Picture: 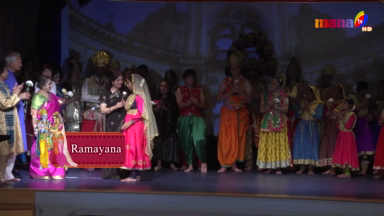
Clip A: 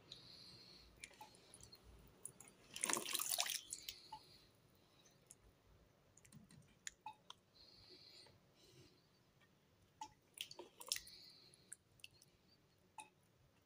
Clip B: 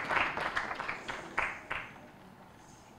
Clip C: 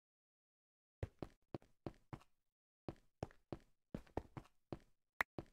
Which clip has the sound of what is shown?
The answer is B